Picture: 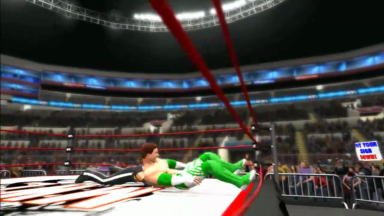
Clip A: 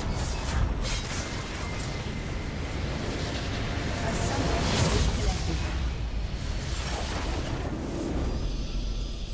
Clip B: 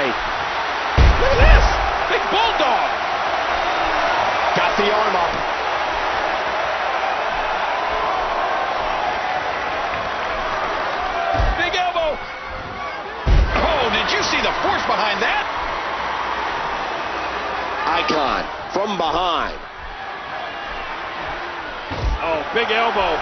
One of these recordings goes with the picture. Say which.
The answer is B